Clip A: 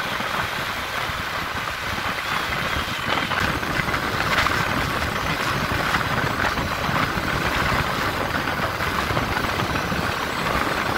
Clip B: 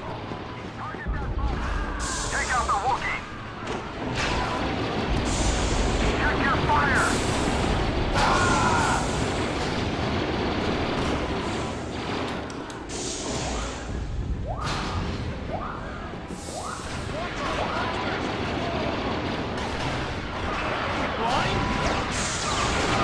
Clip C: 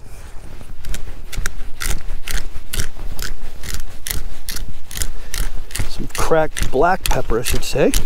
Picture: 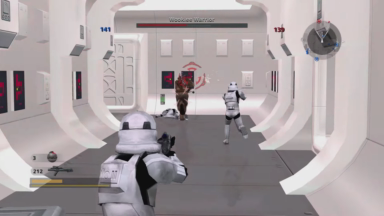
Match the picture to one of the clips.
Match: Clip B